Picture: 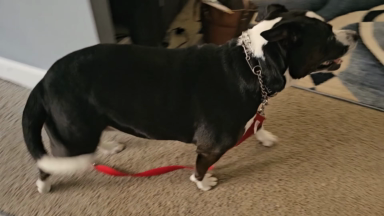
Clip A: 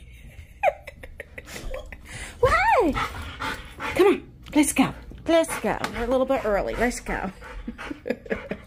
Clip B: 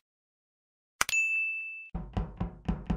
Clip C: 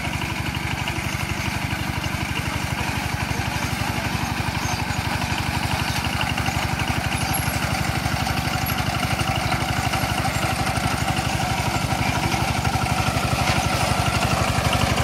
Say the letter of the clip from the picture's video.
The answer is A